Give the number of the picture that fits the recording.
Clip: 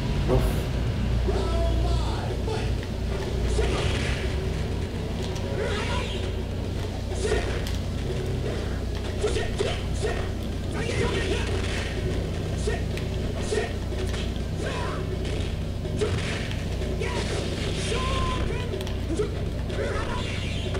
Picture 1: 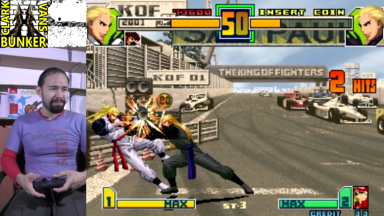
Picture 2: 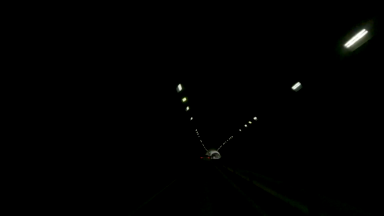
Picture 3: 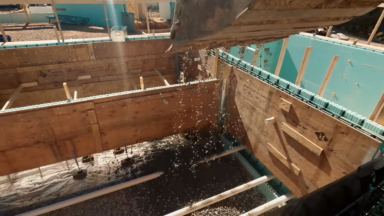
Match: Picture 1